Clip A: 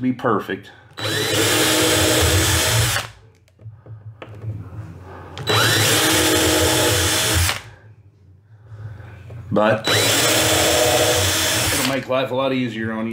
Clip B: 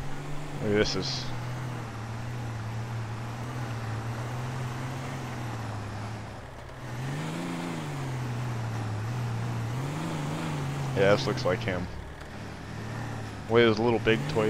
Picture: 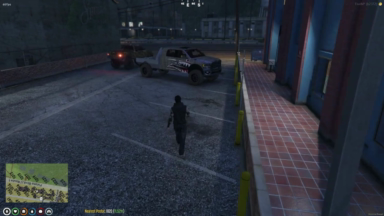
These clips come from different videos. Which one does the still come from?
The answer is B